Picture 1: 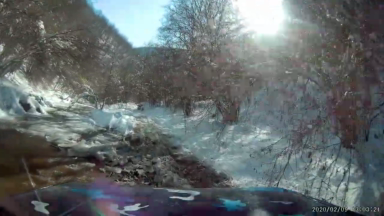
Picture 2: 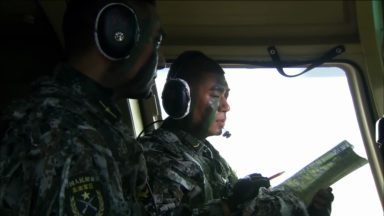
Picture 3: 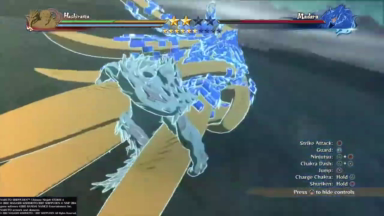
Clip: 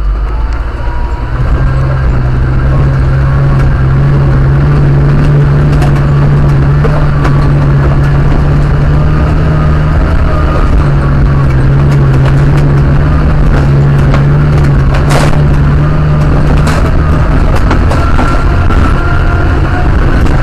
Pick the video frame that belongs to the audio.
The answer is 1